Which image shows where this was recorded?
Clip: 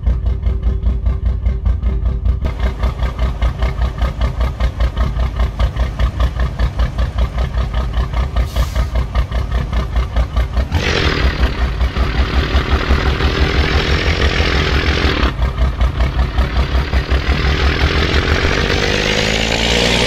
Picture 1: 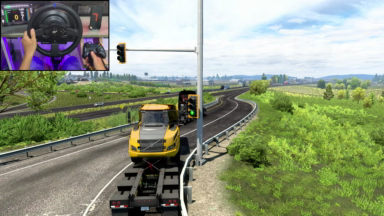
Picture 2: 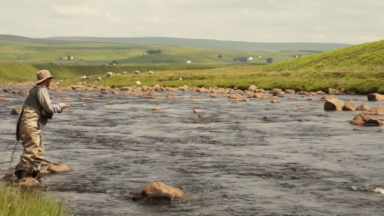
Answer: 1